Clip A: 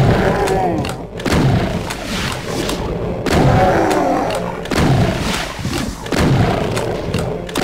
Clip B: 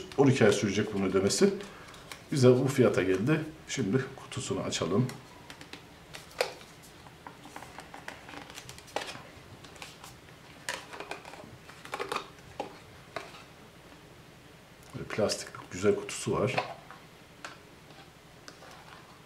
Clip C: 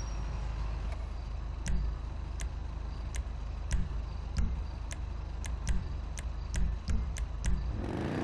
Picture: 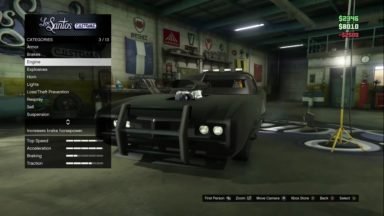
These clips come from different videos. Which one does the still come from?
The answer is C